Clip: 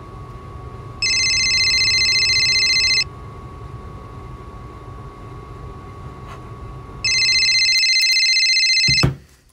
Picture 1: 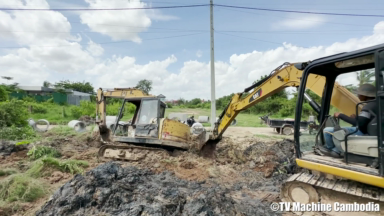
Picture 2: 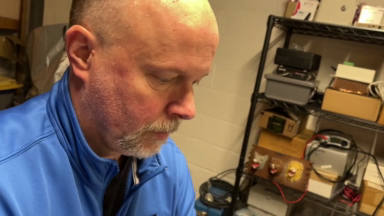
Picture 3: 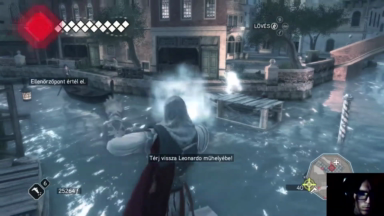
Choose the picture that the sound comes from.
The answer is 2